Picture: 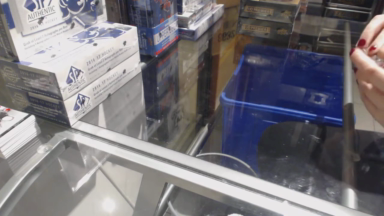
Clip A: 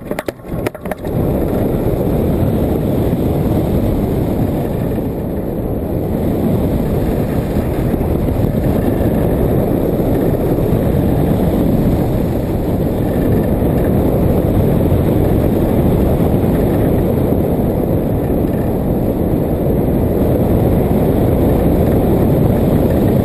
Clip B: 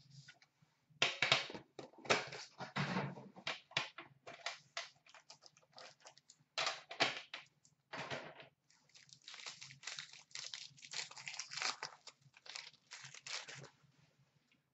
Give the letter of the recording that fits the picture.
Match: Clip B